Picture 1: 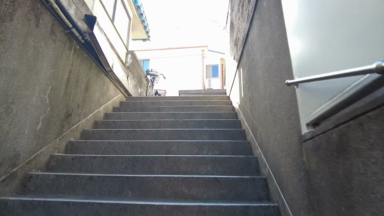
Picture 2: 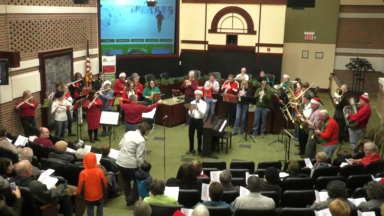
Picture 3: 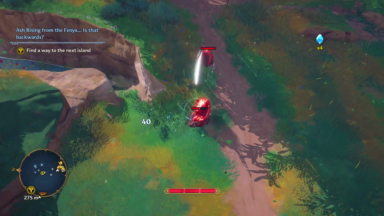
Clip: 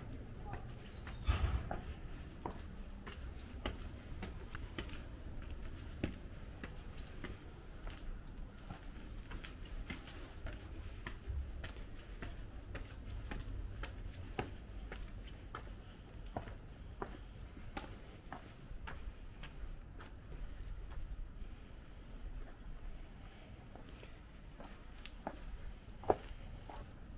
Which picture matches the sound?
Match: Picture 1